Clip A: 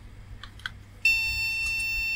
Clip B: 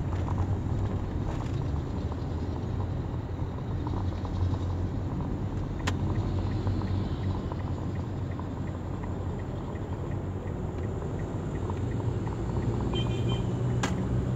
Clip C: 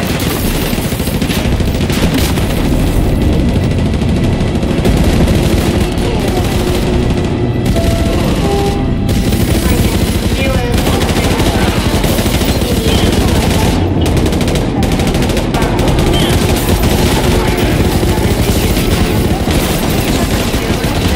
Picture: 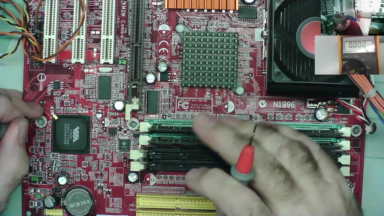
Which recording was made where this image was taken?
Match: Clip A